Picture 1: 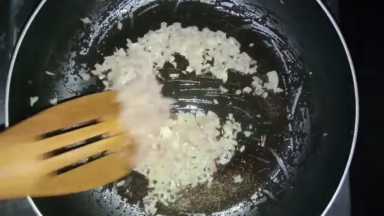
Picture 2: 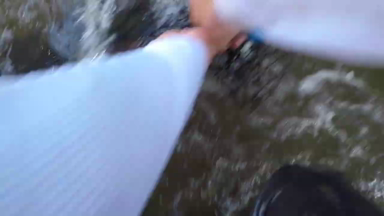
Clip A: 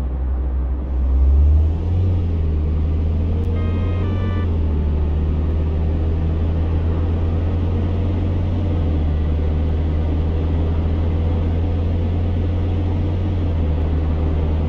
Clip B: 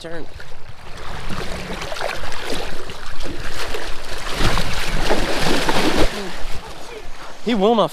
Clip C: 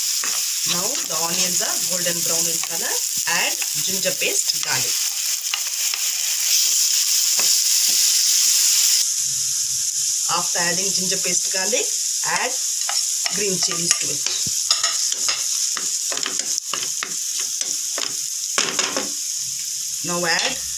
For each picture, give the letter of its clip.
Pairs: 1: C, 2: B